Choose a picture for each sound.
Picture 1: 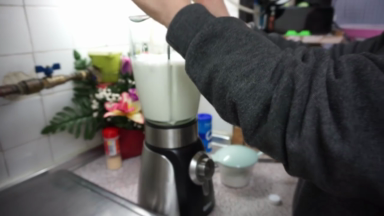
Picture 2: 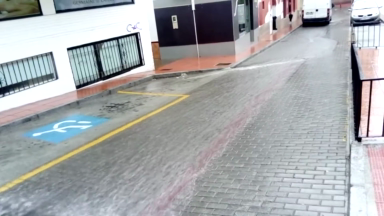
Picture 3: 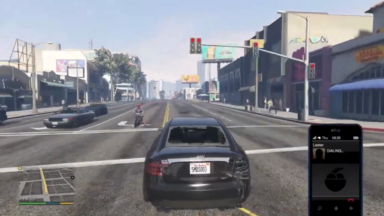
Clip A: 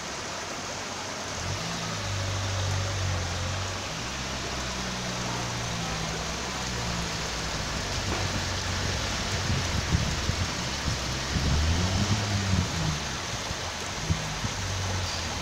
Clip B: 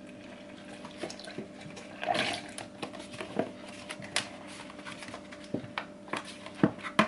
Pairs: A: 2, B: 1